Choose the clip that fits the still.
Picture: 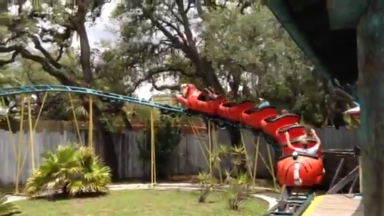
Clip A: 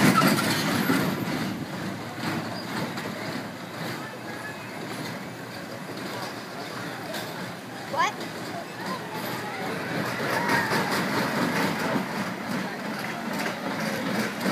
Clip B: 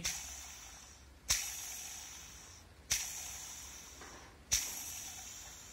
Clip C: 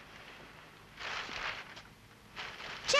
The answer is A